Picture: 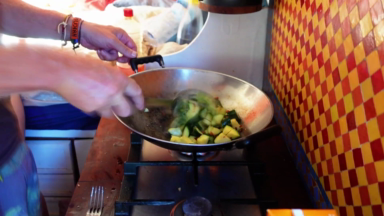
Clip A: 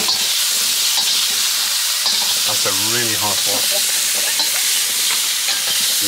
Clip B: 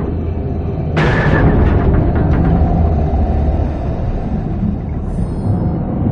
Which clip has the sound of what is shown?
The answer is A